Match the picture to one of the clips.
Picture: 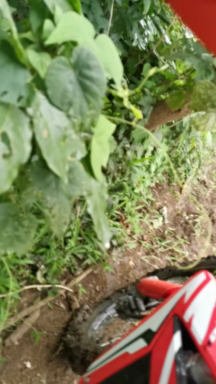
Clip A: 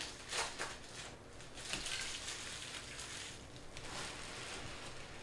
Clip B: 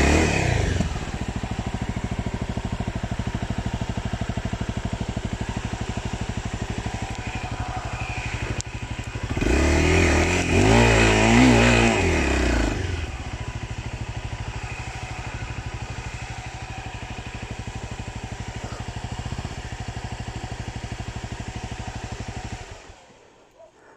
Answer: B